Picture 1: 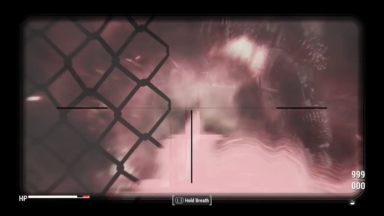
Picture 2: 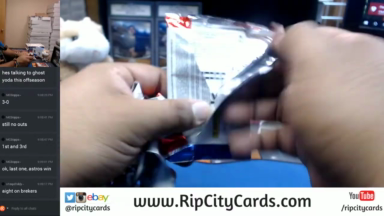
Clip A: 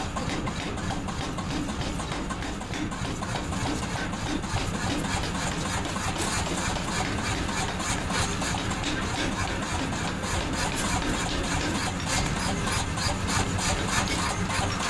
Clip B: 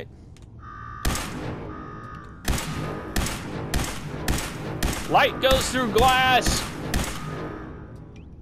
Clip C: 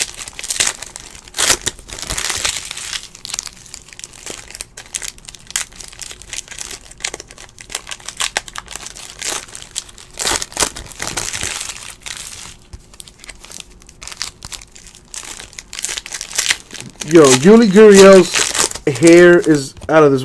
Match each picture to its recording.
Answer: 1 B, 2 C